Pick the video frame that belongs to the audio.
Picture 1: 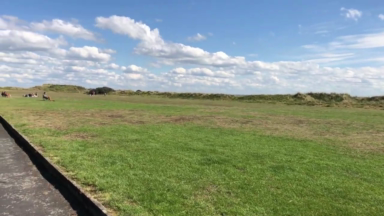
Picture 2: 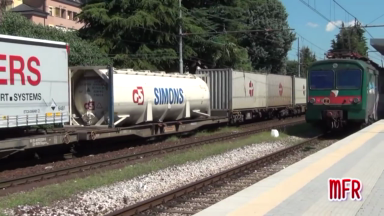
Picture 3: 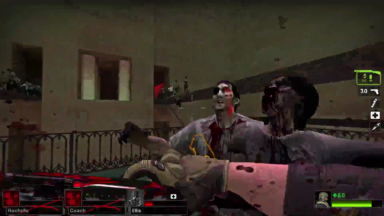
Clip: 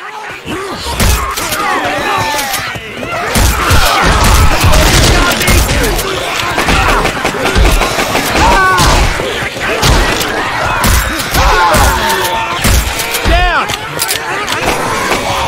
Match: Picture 3